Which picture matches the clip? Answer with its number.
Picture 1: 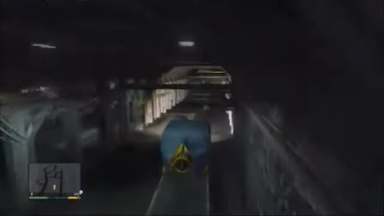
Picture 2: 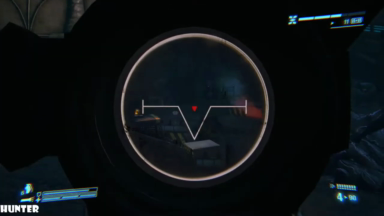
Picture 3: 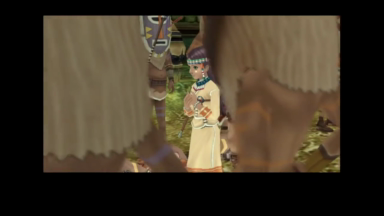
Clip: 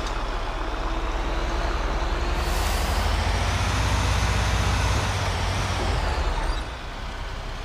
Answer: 1